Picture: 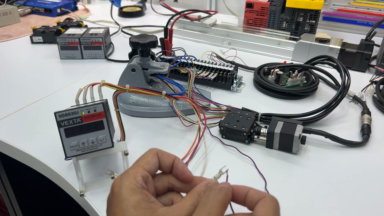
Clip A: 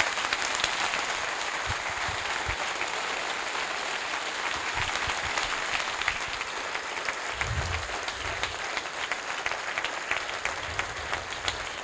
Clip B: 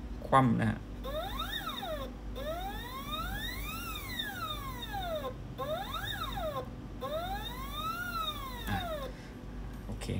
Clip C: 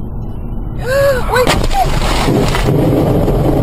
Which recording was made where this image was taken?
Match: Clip B